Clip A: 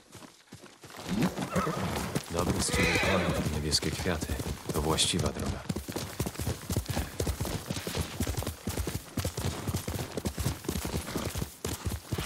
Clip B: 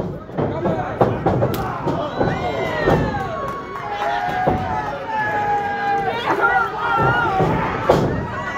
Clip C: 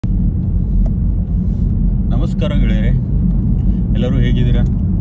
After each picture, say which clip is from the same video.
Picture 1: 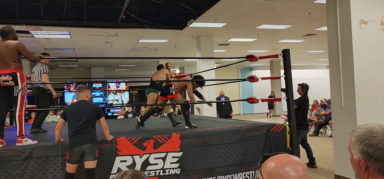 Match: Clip B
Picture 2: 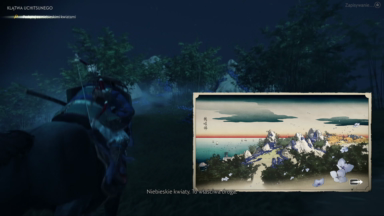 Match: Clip A